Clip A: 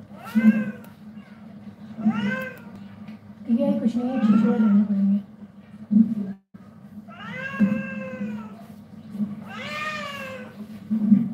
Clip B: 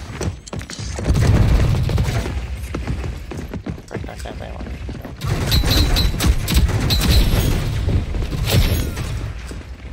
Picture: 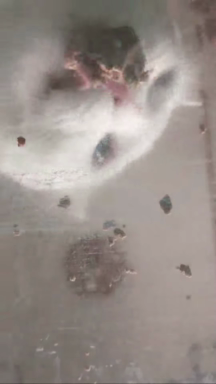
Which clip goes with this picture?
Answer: A